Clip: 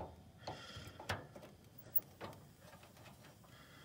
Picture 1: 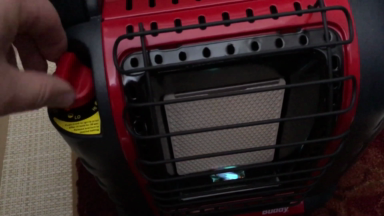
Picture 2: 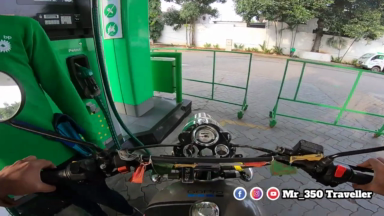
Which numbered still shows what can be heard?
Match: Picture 1